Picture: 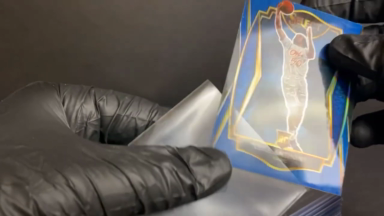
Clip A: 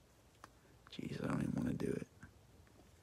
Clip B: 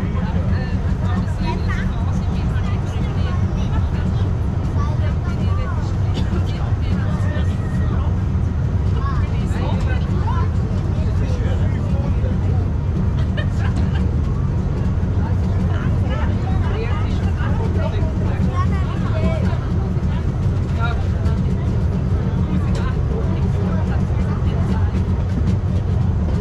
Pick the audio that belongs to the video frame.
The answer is A